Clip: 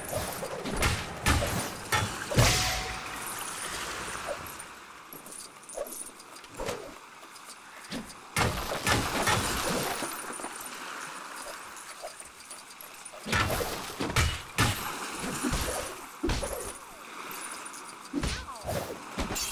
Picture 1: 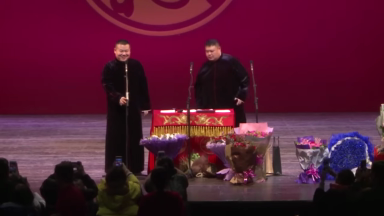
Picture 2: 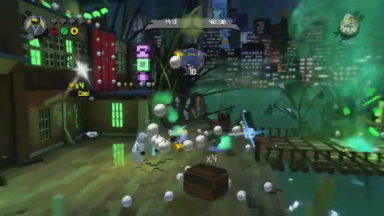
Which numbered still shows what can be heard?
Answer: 2